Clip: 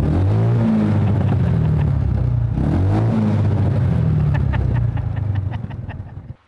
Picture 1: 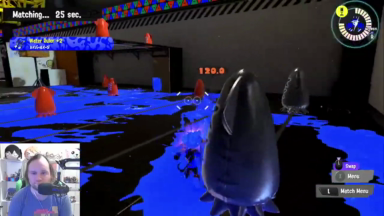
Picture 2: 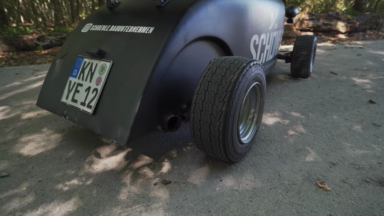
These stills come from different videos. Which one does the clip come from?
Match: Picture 2